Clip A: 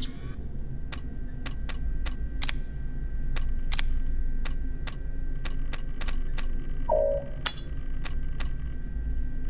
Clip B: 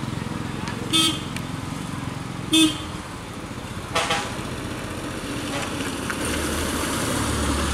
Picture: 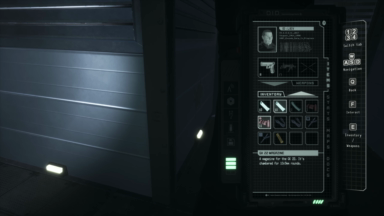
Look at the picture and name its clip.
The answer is A